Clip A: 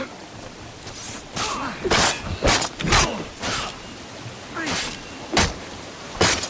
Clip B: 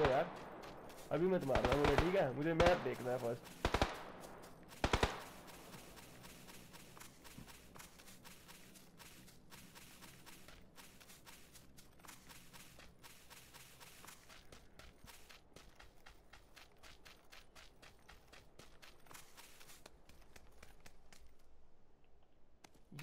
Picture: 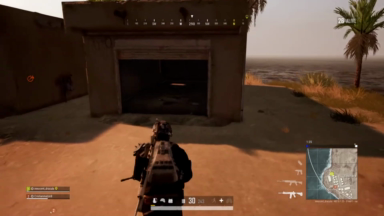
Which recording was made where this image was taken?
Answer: B